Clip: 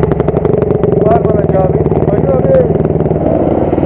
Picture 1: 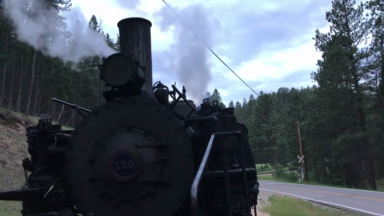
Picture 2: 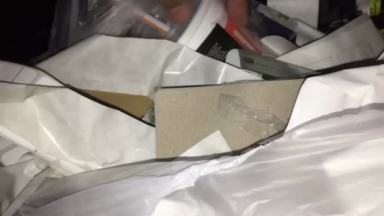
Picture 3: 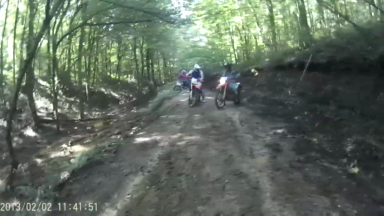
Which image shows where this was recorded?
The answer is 3